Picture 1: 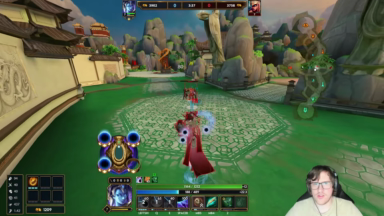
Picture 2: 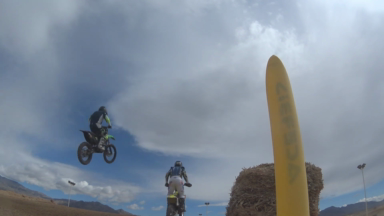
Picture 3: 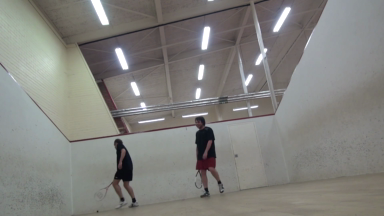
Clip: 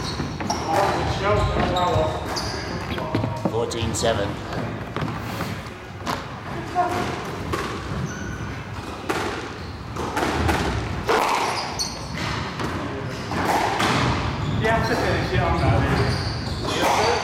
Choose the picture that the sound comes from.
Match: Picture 3